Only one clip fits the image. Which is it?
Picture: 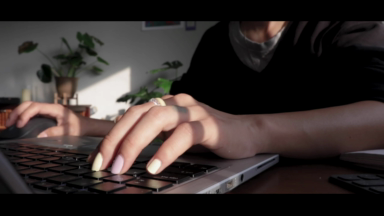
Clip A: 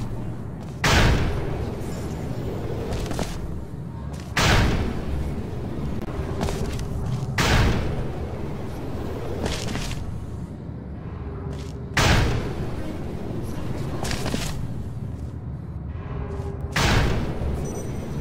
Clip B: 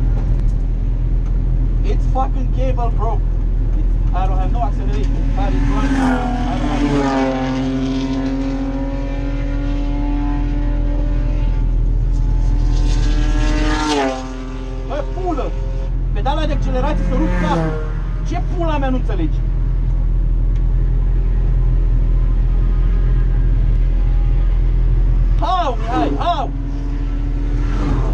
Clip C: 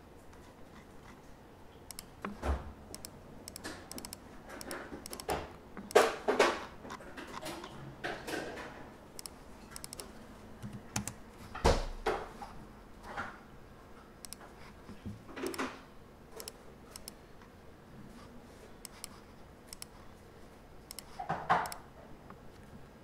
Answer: C